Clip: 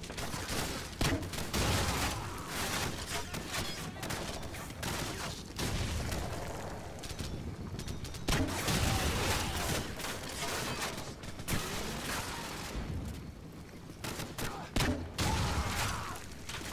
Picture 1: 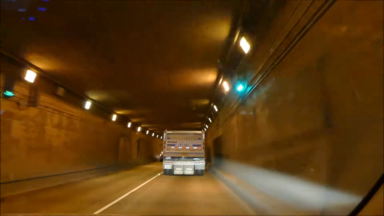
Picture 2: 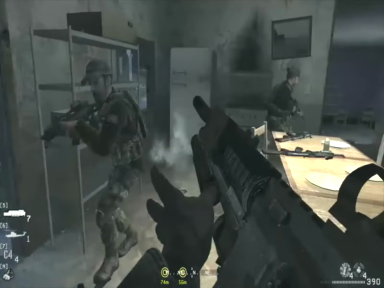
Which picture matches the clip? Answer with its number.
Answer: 2